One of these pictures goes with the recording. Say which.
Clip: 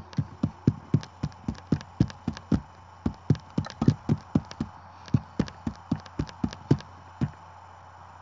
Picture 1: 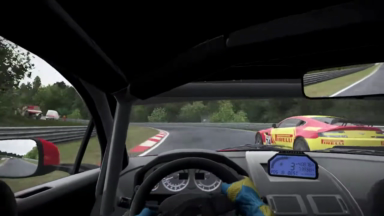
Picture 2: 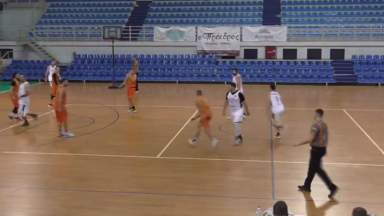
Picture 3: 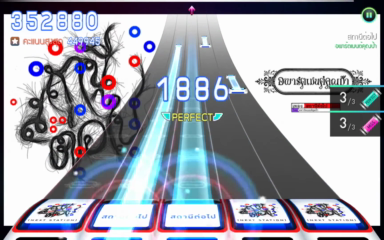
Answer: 3